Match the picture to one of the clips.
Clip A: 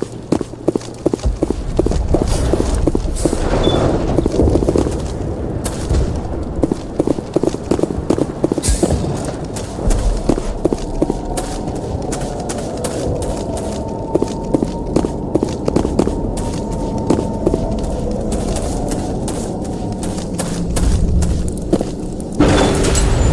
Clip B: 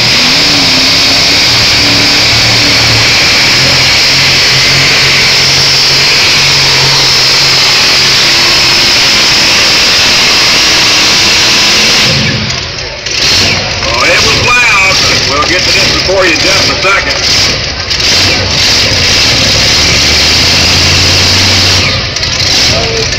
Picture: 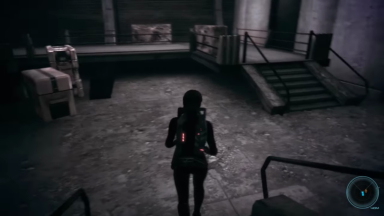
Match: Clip A